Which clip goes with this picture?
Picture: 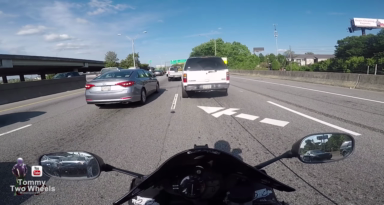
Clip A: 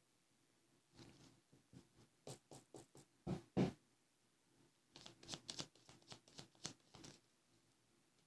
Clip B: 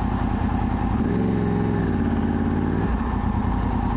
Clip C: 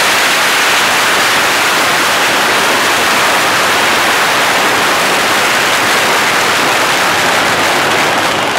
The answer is B